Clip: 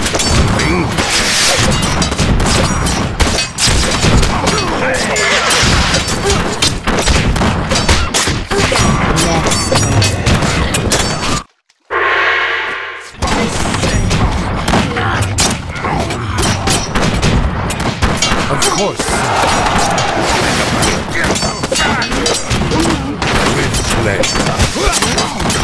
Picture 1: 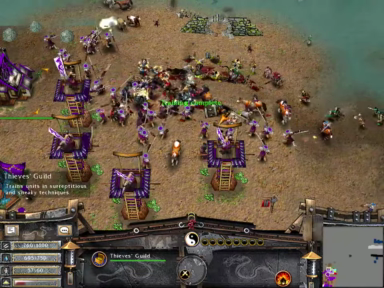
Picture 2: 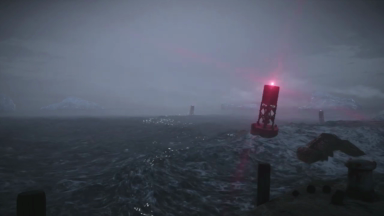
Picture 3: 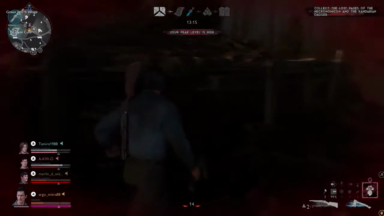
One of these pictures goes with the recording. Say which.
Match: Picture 1